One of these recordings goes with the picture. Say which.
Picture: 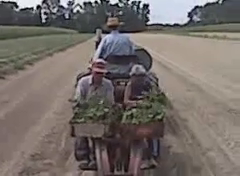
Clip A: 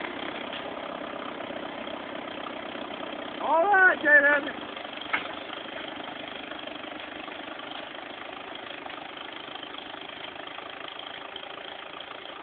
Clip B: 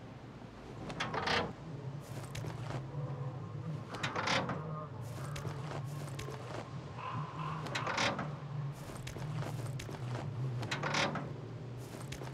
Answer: A